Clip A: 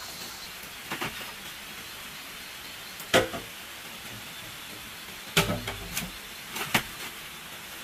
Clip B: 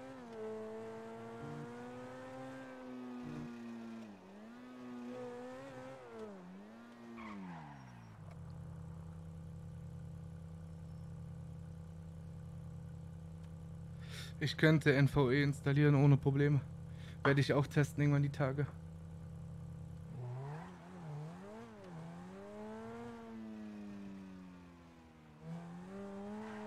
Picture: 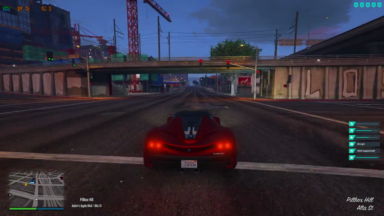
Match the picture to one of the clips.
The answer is B